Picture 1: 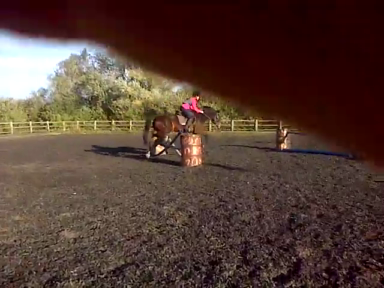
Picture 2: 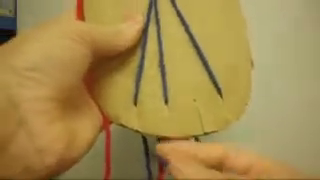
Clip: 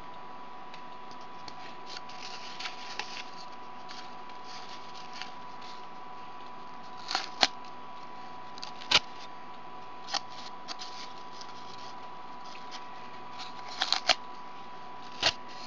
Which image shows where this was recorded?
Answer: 2